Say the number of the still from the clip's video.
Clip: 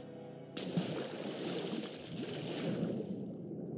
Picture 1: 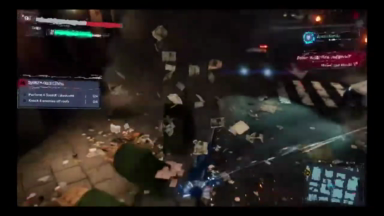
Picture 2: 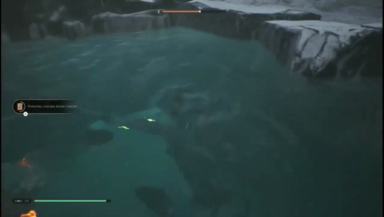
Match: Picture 2